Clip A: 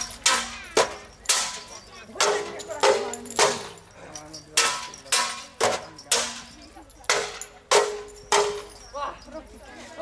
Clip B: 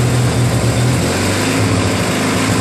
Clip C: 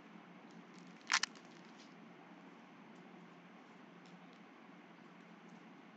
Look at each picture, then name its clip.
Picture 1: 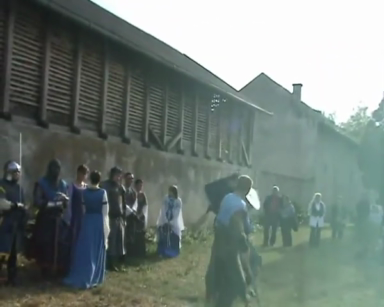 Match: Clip A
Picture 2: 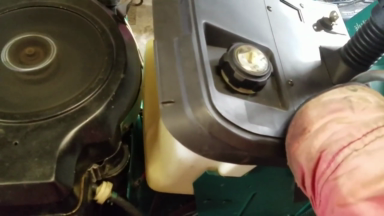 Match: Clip B